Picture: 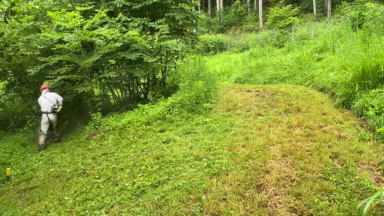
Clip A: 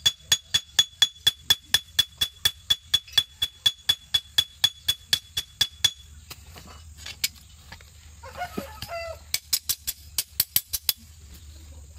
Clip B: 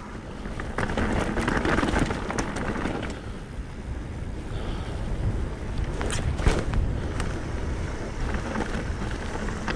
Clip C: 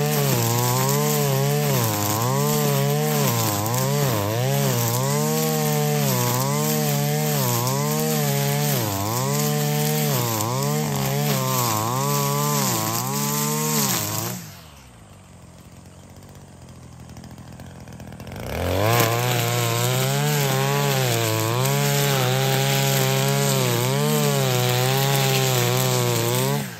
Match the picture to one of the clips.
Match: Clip C